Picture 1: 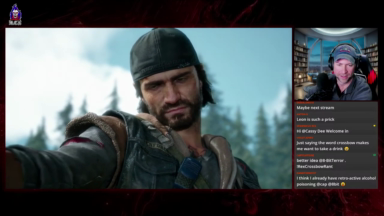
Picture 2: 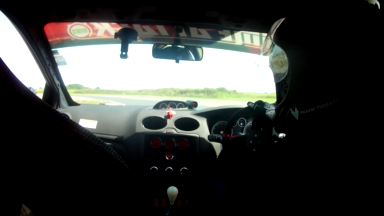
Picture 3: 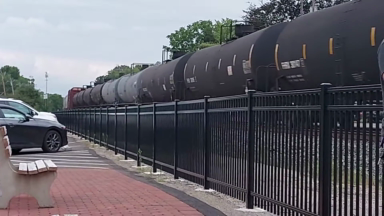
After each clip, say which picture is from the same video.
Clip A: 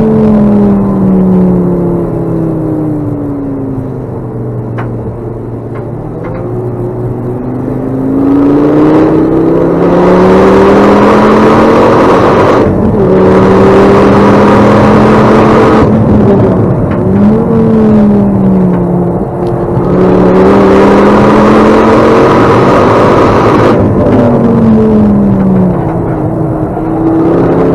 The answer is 2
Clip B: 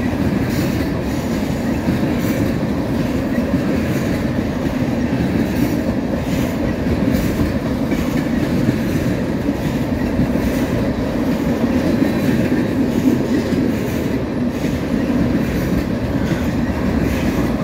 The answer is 3